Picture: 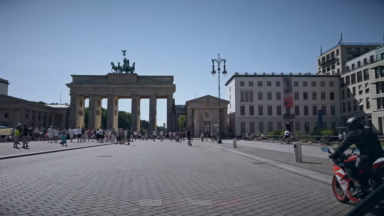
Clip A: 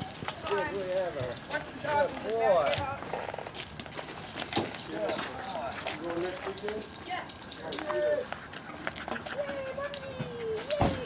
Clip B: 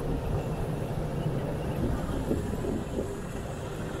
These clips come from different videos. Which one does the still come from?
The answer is B